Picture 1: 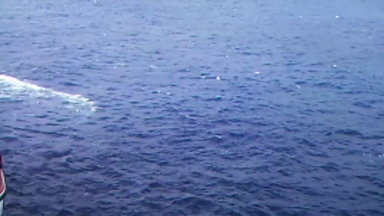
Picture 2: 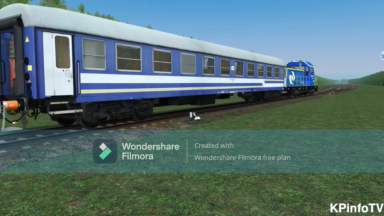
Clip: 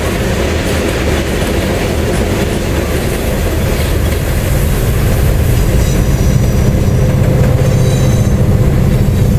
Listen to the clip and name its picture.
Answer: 2